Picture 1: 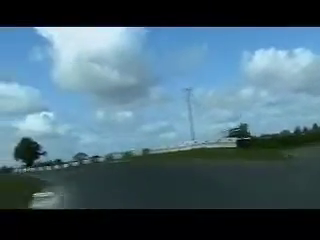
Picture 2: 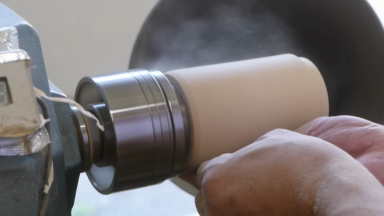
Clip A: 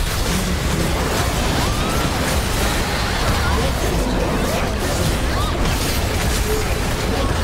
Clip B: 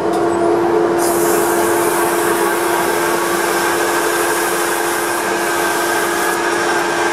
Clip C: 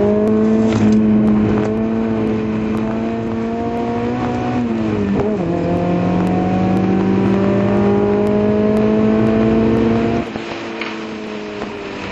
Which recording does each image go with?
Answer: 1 C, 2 B